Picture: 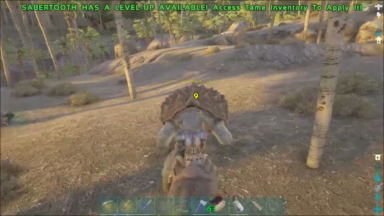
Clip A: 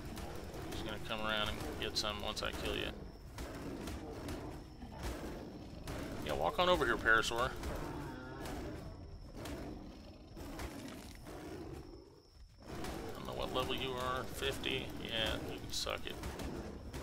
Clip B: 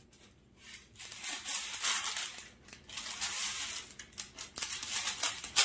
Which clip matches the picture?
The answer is A